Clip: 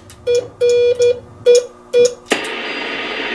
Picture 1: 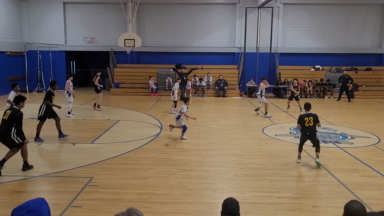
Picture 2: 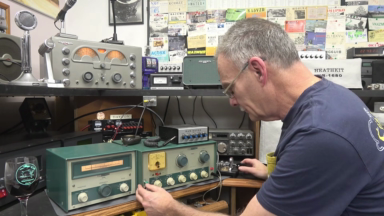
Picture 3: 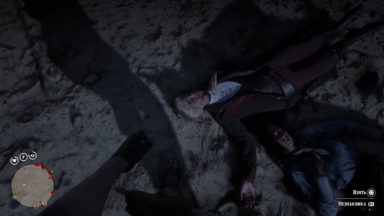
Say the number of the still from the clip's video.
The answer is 2